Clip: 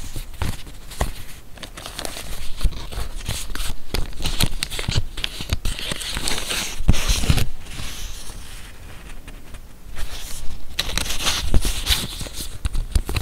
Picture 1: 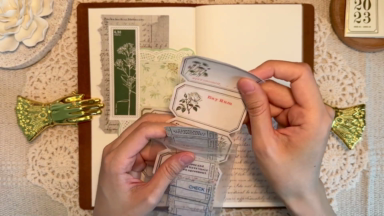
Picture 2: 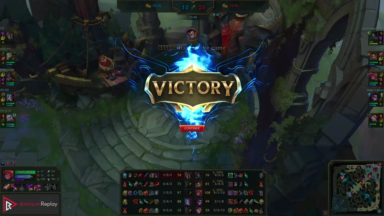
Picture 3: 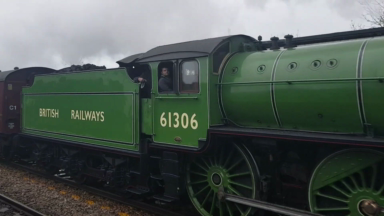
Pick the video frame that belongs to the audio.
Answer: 1